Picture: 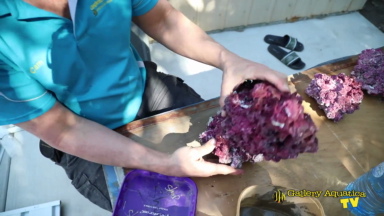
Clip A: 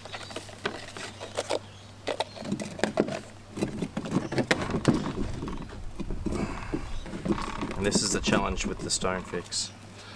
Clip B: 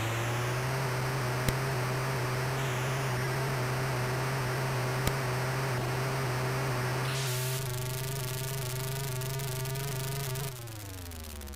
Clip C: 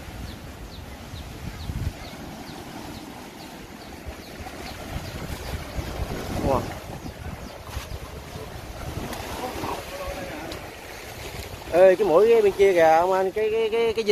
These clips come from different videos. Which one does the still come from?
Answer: A